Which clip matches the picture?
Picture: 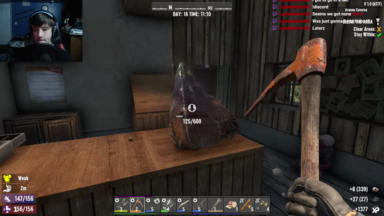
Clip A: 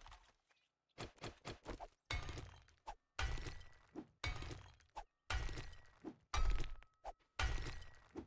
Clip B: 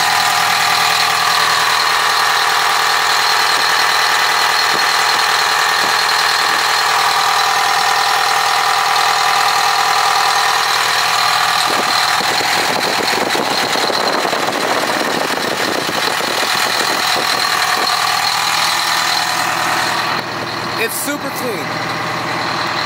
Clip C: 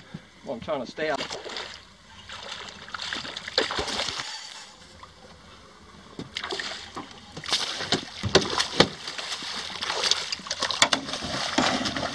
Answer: A